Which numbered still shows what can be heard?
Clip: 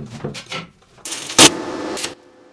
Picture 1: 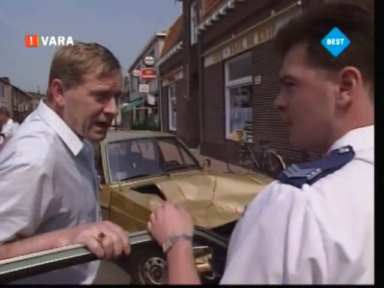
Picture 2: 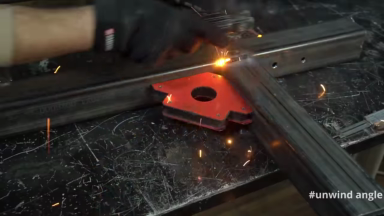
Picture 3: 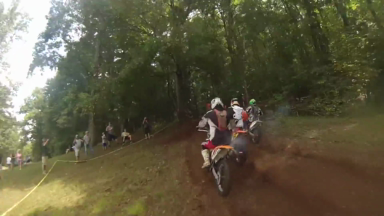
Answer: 2